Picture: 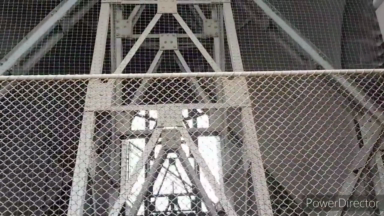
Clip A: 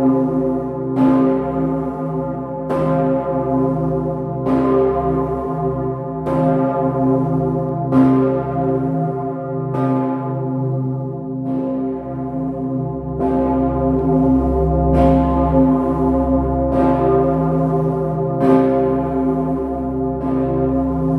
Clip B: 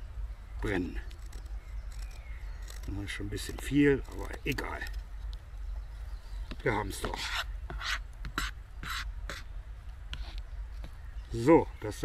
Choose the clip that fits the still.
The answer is A